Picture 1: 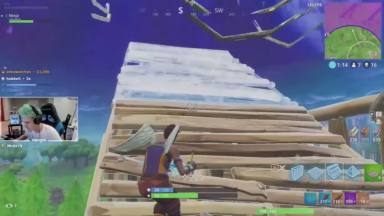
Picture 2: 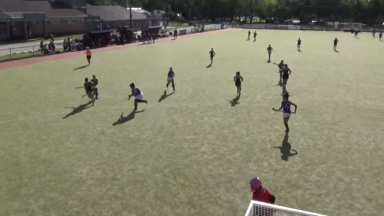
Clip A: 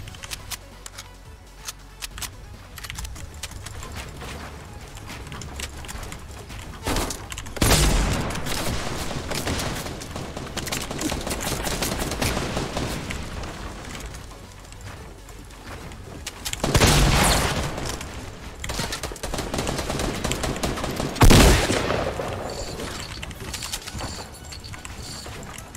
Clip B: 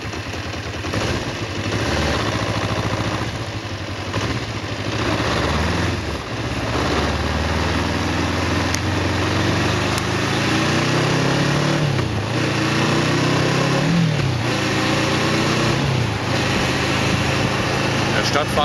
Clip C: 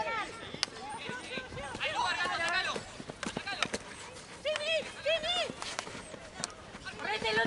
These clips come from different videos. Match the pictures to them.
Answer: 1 A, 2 C